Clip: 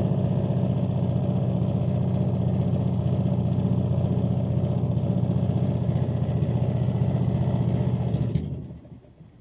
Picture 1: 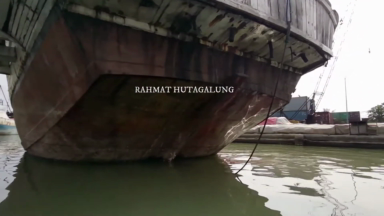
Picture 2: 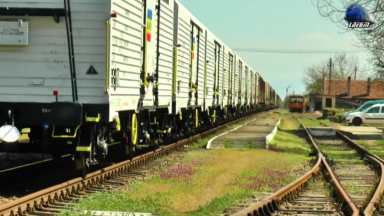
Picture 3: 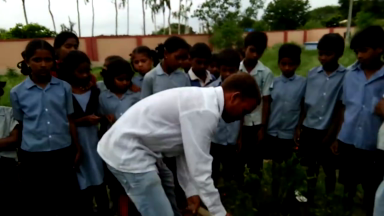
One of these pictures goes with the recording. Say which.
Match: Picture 1